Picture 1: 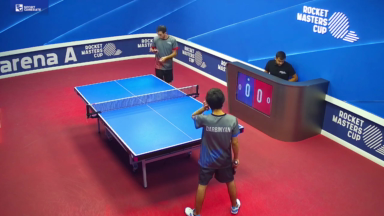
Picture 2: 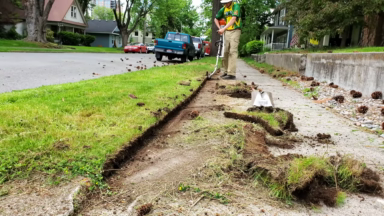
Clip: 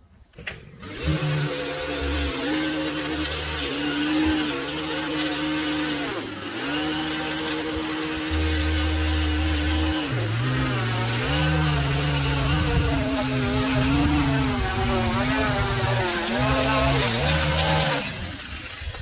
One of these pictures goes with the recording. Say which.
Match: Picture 2